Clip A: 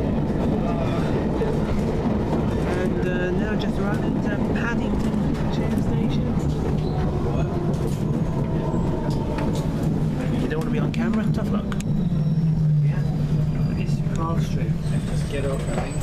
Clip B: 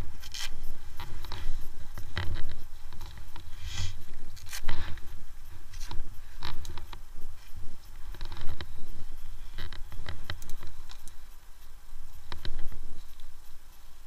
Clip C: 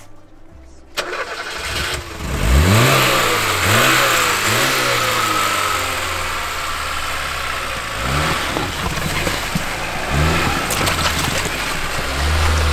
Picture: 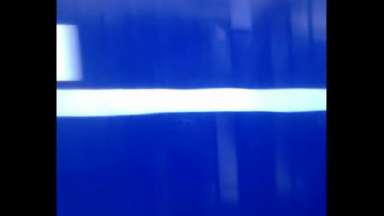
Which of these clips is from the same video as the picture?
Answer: A